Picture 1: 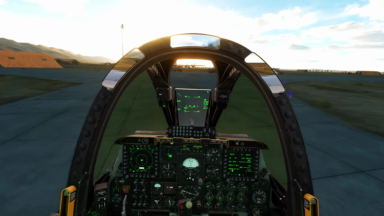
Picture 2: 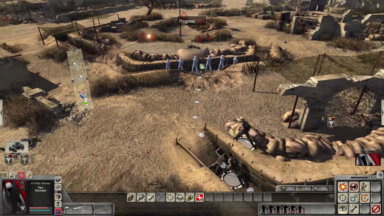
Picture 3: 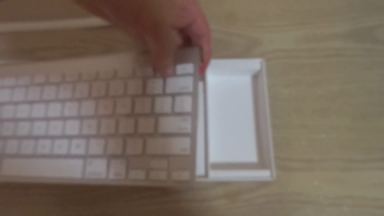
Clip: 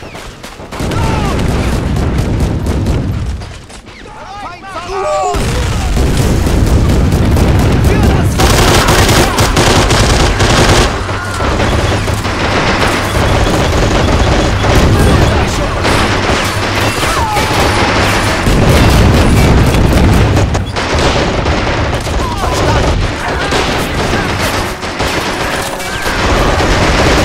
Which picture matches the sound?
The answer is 2